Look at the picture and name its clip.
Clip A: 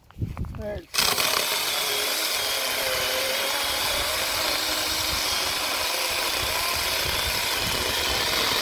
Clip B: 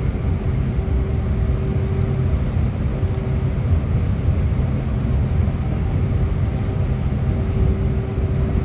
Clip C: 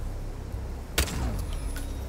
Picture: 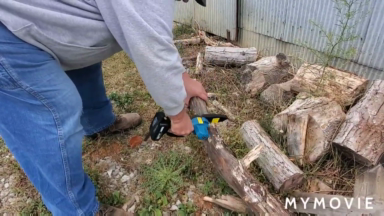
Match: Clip A